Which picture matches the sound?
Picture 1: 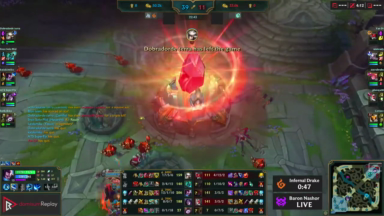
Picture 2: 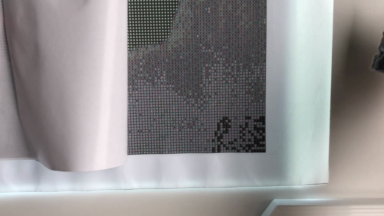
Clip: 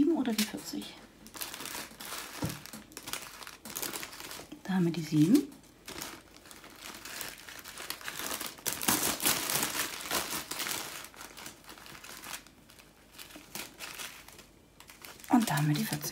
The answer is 2